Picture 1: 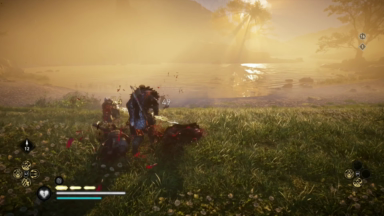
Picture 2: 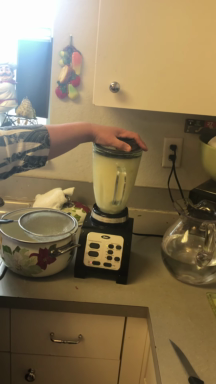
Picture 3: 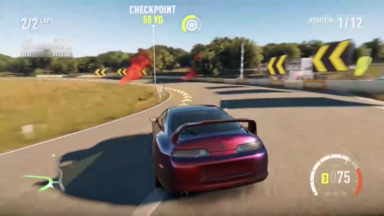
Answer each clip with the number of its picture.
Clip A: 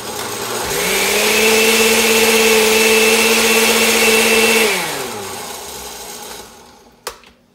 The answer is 2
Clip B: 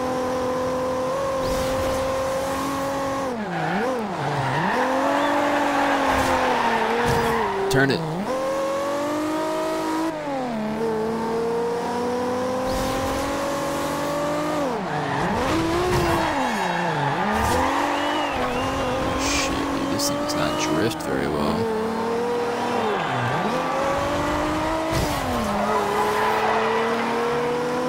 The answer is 3